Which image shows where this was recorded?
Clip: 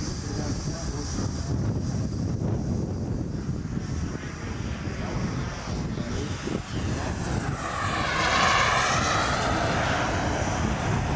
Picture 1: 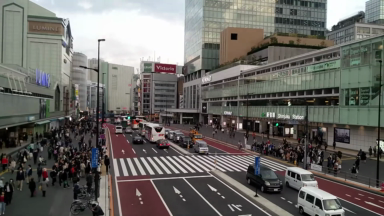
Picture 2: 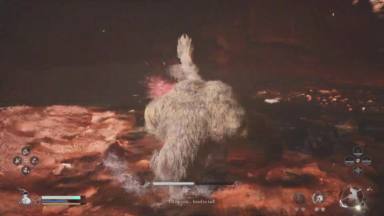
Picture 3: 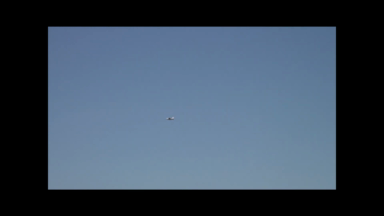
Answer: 3